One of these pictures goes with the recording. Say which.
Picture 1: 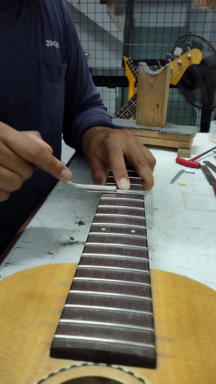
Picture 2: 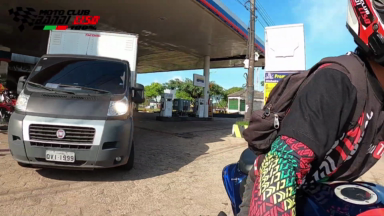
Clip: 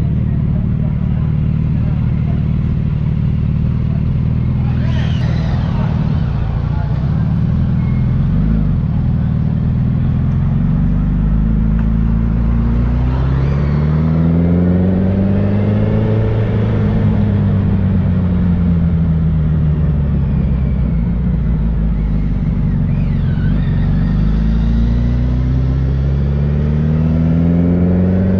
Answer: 2